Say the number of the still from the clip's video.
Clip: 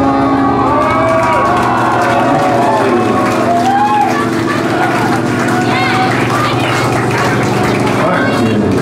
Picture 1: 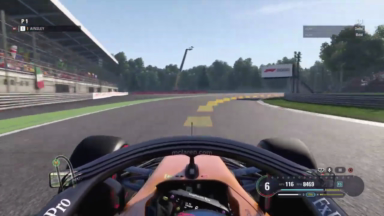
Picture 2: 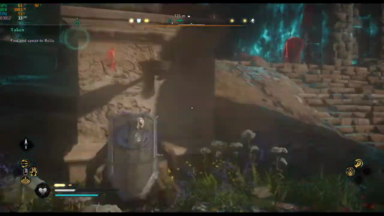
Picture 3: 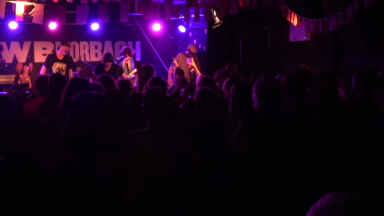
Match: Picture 3